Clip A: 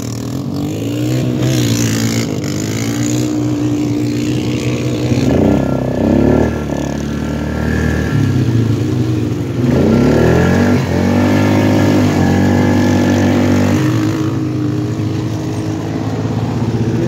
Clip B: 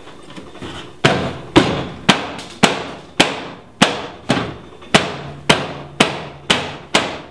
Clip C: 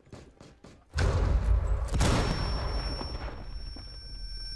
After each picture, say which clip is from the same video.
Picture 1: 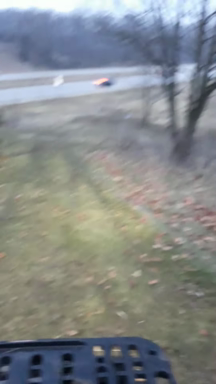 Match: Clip A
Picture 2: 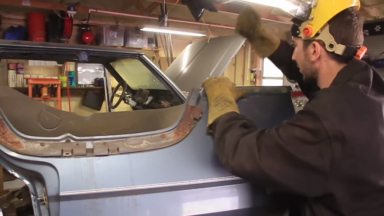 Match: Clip B